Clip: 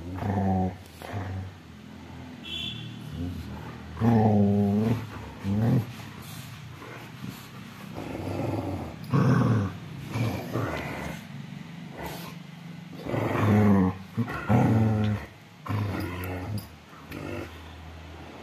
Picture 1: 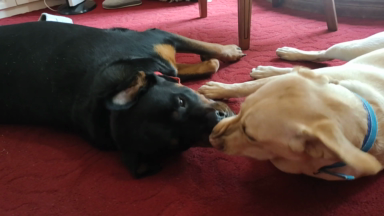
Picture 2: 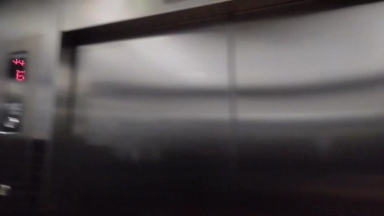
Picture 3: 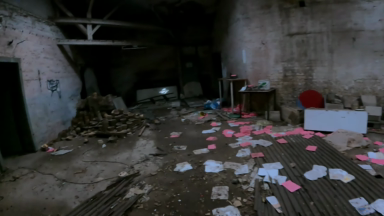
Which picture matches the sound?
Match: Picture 1